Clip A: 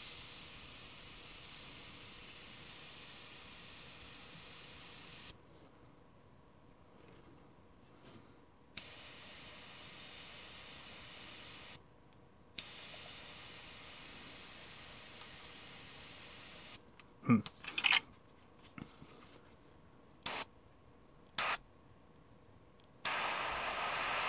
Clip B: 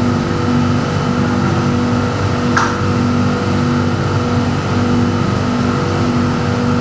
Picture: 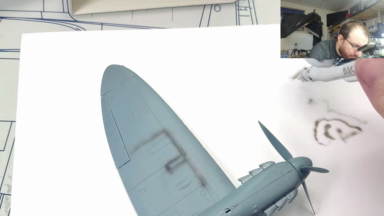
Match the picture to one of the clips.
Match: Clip A